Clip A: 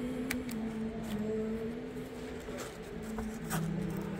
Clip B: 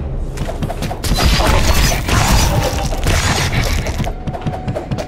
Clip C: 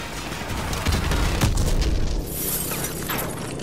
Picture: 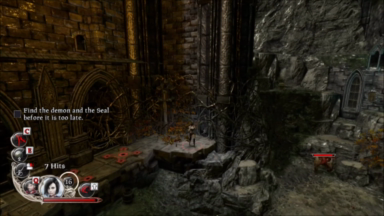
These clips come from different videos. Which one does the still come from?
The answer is B